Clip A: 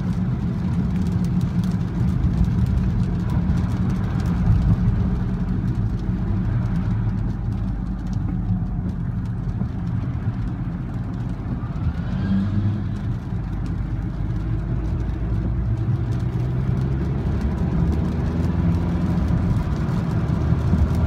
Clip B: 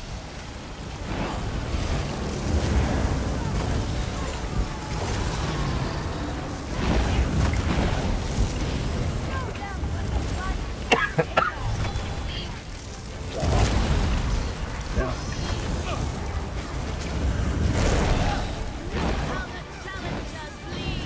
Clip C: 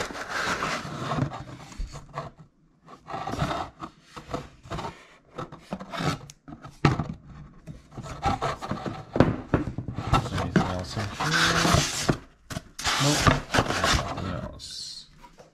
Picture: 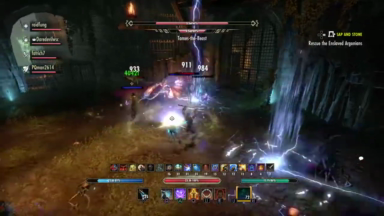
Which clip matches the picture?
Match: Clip B